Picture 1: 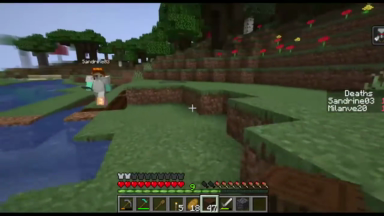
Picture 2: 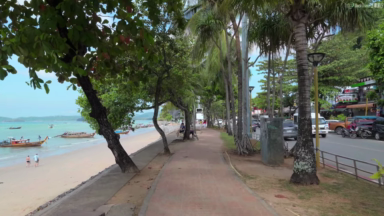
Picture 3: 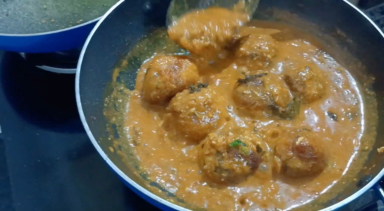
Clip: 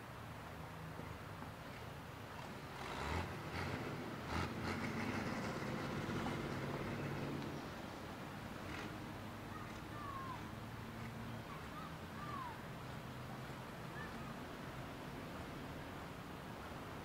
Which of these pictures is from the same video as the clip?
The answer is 2